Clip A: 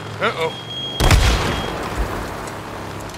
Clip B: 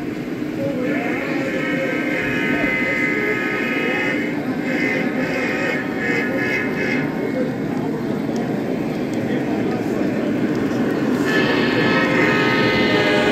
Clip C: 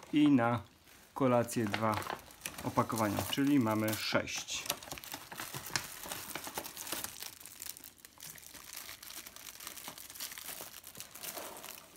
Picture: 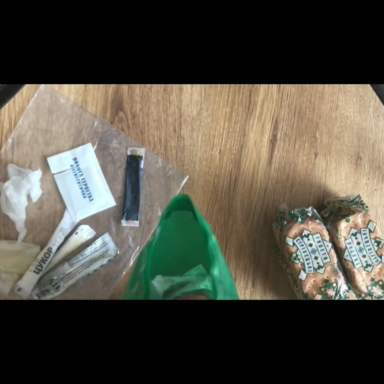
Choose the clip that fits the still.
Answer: C